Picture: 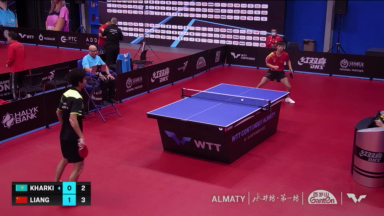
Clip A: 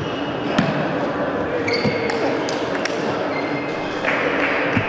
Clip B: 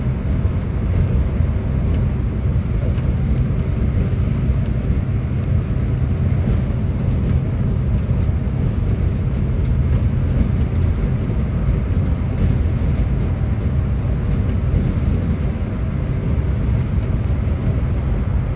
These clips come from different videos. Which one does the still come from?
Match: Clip A